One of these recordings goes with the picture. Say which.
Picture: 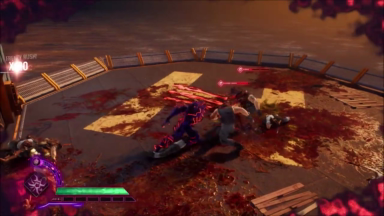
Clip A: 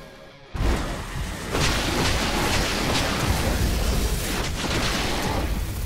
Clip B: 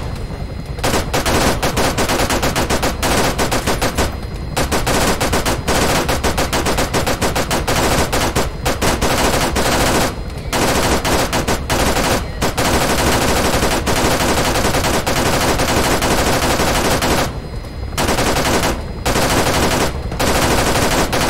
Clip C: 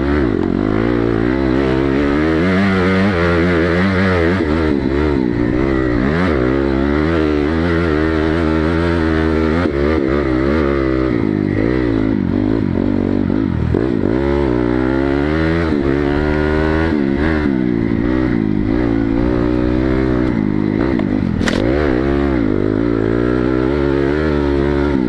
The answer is A